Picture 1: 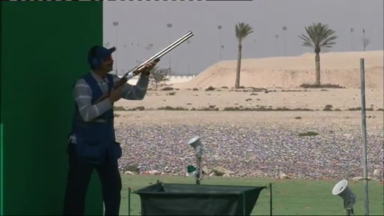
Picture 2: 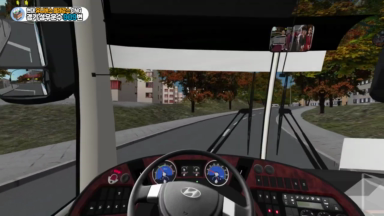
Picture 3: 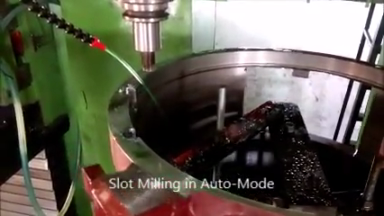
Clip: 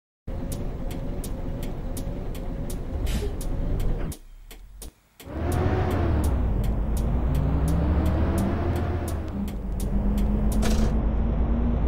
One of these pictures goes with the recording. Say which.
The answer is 2